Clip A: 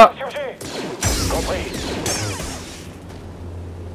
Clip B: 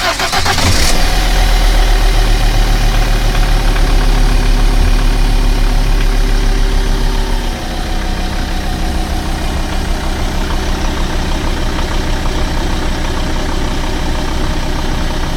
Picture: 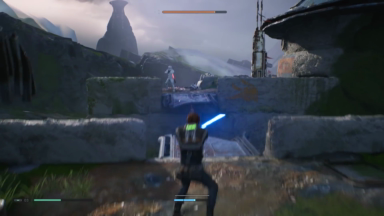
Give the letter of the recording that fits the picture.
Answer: A